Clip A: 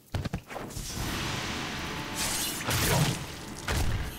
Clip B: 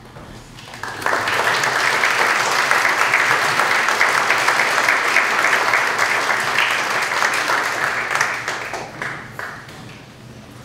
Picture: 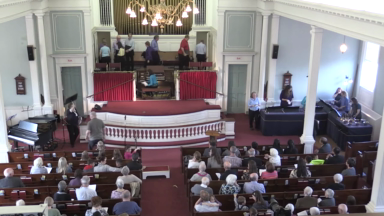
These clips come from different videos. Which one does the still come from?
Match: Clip B